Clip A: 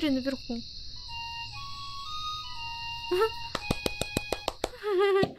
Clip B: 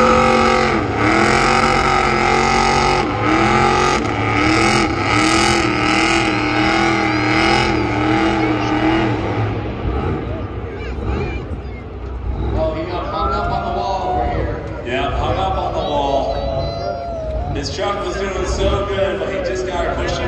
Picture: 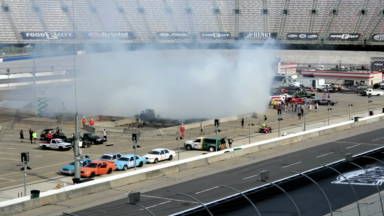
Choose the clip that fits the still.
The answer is B